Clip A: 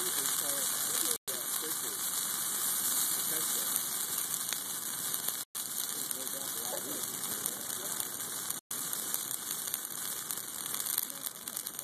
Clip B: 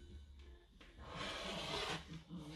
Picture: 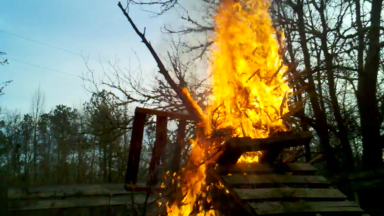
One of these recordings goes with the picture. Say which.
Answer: A